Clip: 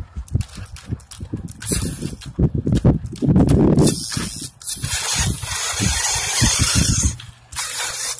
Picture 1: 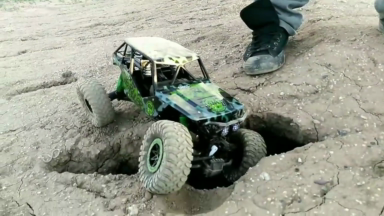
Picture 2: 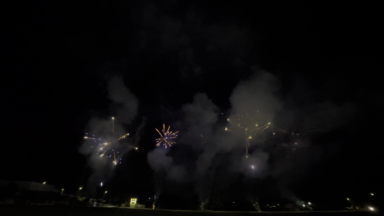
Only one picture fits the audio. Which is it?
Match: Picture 1